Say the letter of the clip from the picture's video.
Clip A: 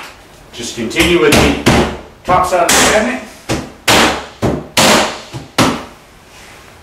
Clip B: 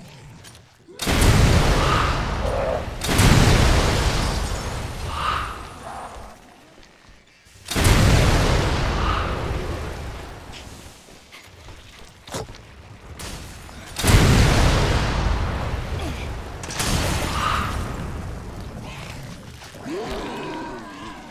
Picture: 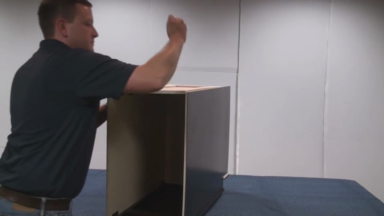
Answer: A